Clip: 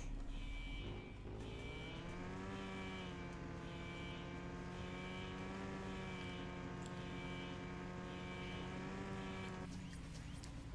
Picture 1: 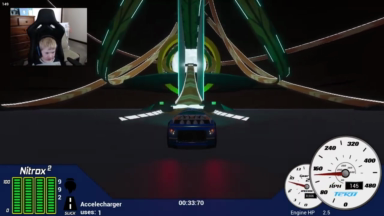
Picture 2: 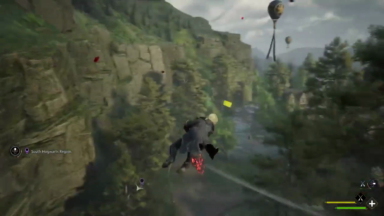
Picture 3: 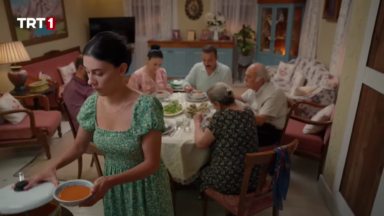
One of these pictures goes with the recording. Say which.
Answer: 1